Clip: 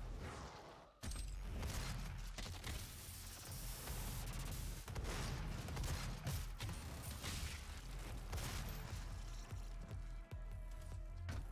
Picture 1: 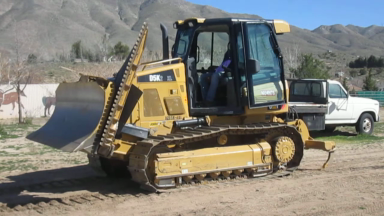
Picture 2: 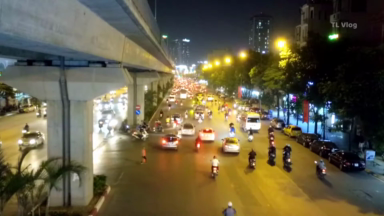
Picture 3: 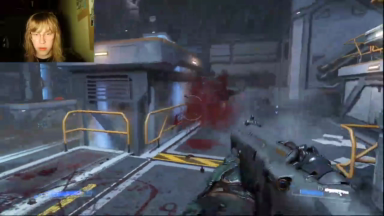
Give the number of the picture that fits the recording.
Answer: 3